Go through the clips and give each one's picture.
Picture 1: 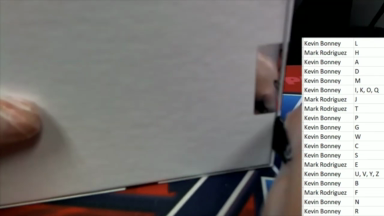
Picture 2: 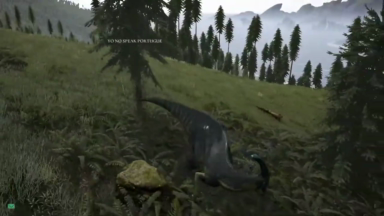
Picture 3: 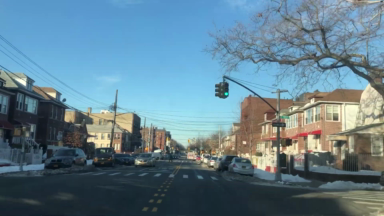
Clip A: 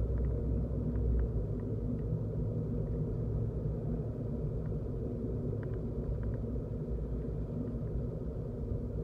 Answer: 3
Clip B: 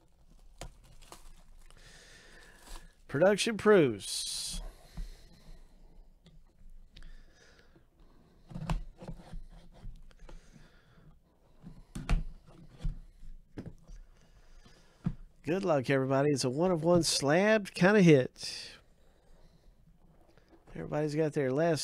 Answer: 1